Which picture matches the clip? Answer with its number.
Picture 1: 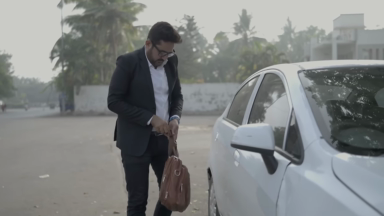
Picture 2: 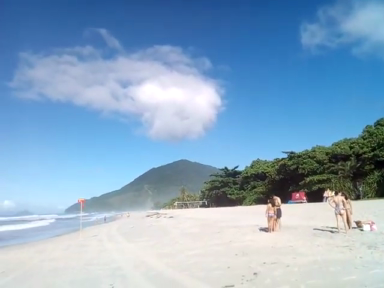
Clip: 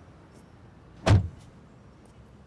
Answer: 1